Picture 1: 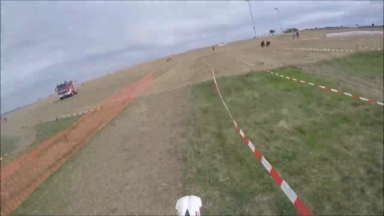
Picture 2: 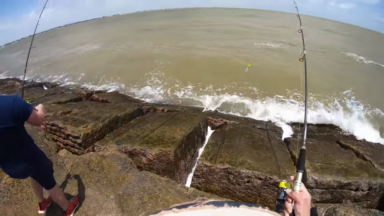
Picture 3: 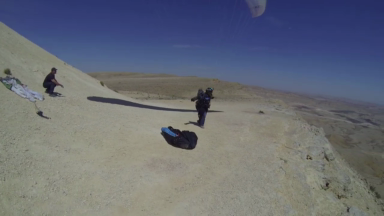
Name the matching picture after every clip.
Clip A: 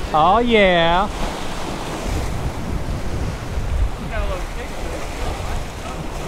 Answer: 2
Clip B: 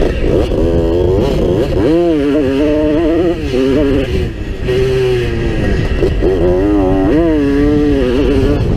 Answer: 1